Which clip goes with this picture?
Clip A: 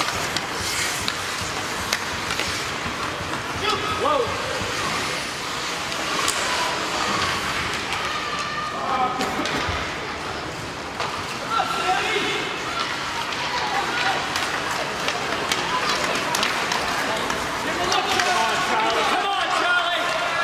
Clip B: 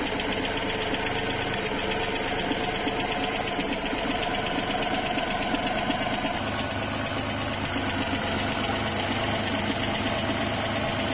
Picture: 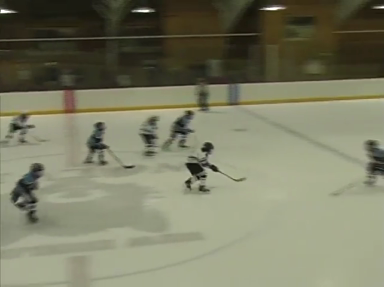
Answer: A